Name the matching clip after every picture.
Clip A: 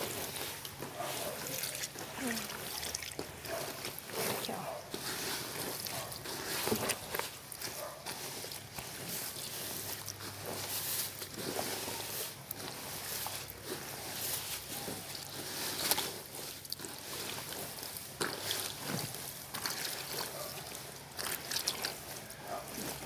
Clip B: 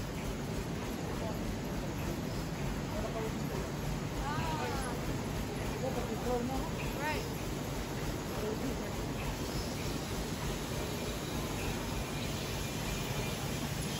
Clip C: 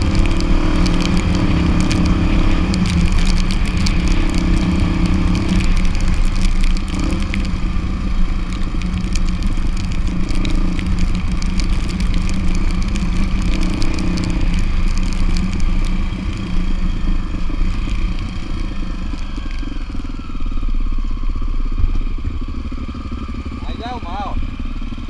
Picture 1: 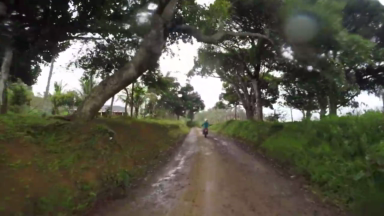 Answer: C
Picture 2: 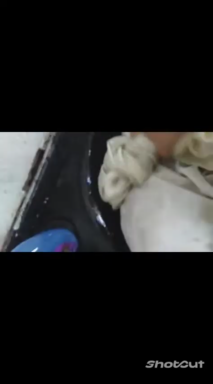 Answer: A